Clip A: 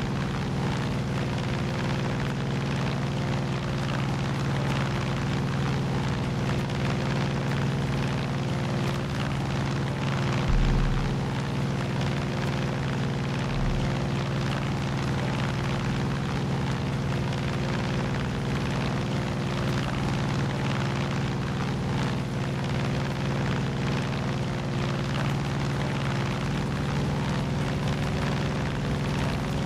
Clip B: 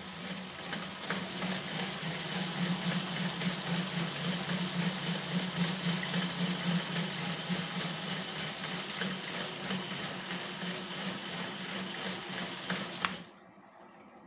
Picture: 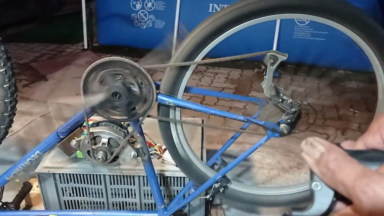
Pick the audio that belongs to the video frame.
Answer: B